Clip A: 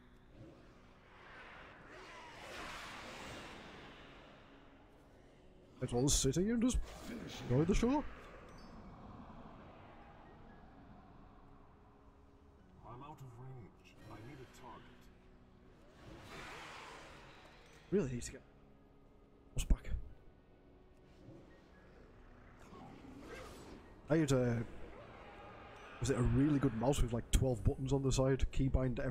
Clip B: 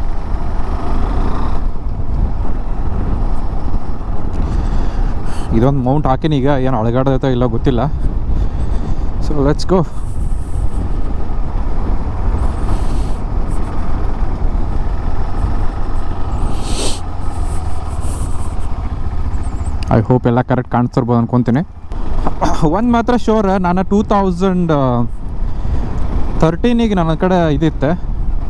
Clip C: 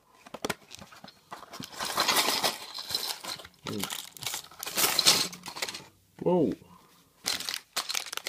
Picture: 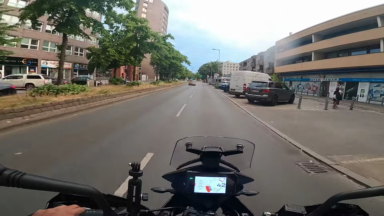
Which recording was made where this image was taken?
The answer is B